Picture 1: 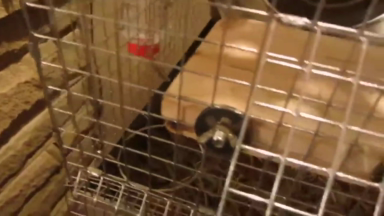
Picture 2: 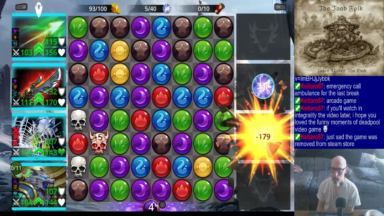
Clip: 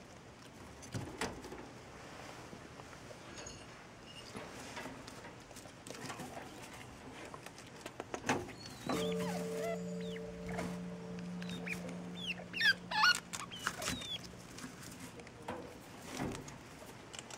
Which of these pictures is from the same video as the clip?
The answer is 1